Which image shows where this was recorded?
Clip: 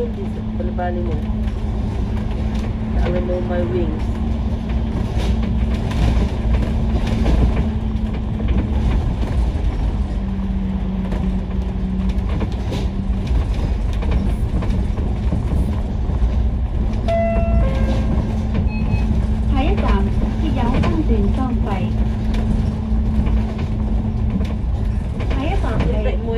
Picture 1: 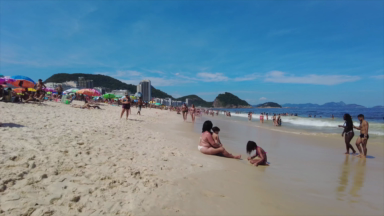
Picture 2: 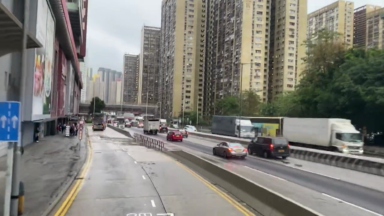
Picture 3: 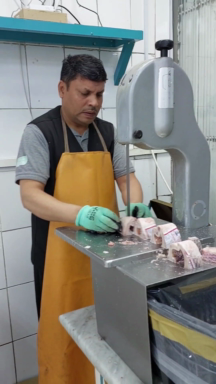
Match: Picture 2